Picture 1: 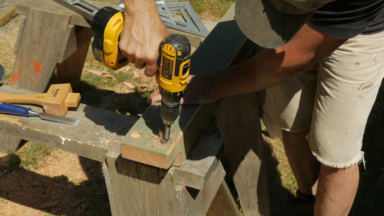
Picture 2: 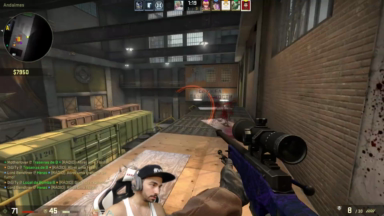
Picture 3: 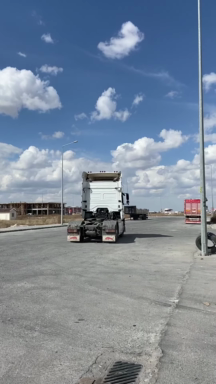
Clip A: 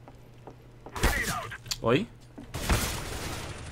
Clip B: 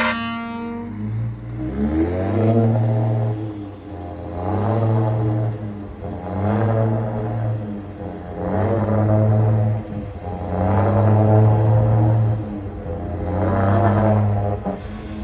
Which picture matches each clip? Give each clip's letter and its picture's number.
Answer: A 2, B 3